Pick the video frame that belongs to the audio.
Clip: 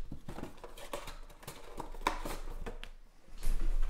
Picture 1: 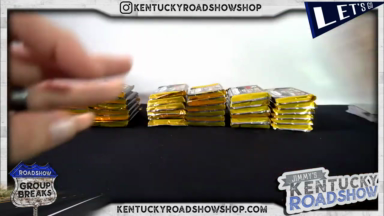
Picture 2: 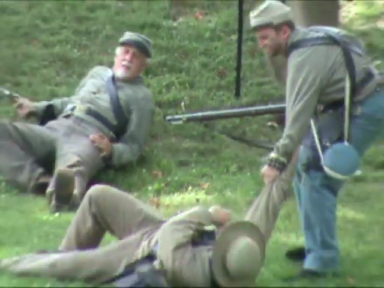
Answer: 1